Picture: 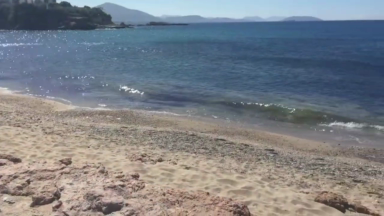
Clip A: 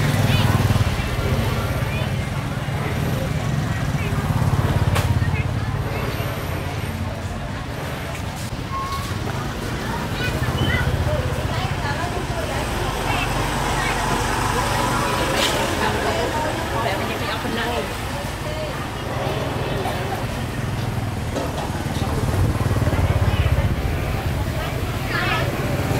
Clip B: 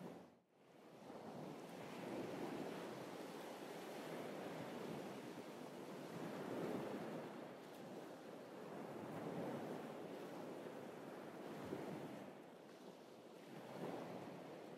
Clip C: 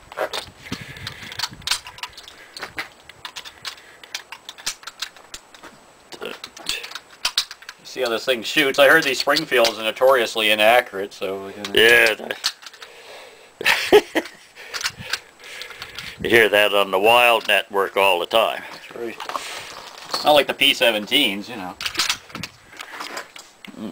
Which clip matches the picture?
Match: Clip B